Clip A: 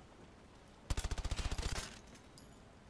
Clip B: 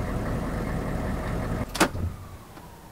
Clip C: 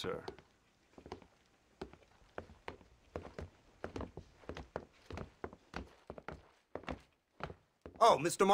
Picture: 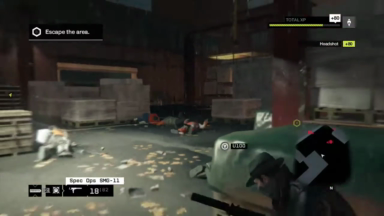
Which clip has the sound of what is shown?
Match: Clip A